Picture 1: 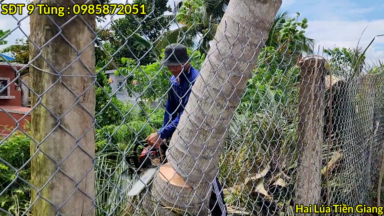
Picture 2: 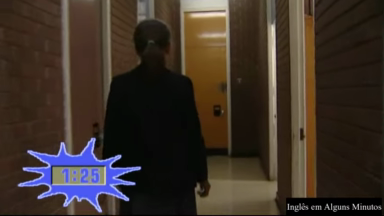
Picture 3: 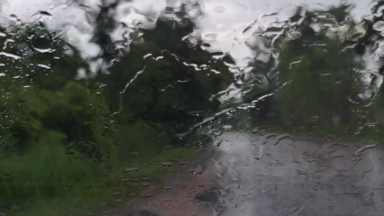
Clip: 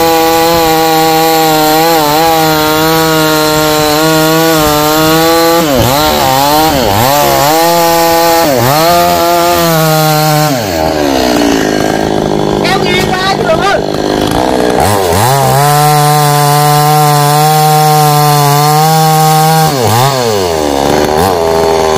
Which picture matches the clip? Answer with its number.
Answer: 1